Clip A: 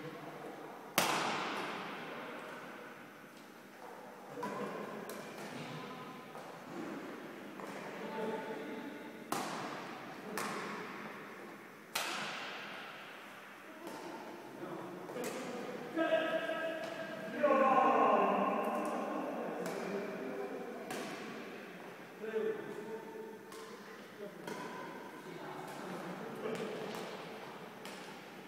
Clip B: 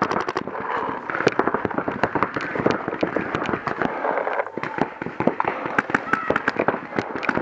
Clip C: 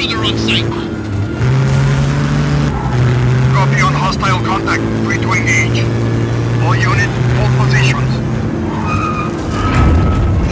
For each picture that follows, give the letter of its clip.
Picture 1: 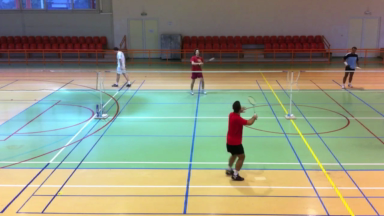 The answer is A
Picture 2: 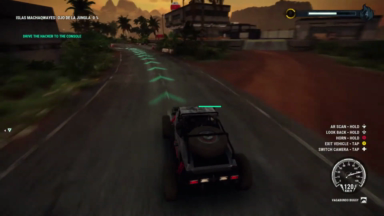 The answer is C